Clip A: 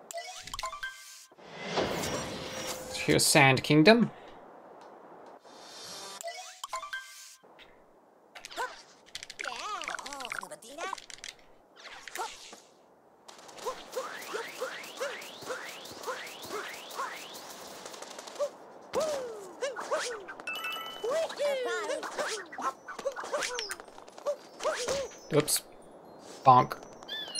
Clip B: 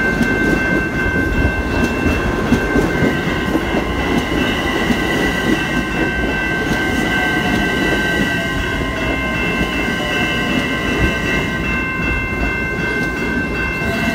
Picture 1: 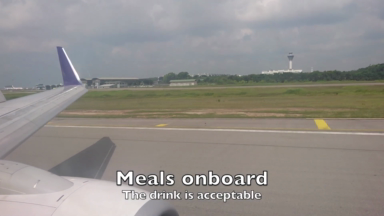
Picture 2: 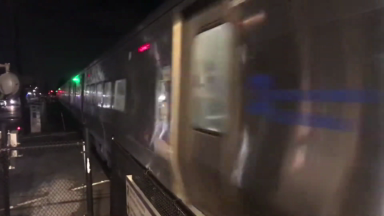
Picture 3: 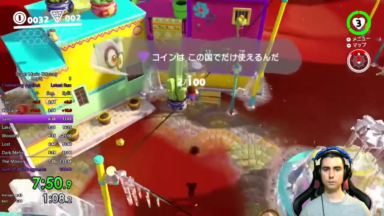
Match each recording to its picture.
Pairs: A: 3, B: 2